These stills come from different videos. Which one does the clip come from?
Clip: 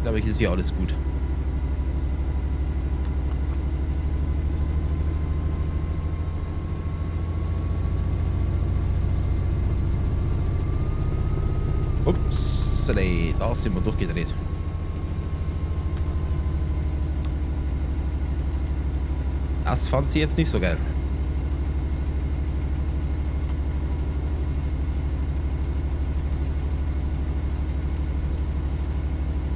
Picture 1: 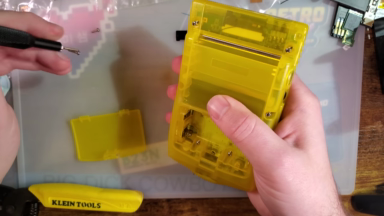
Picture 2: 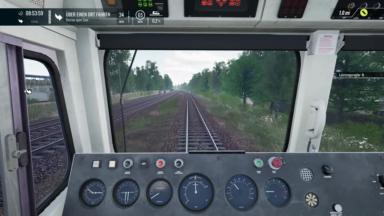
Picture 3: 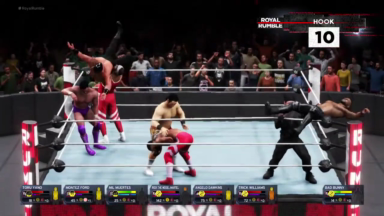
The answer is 2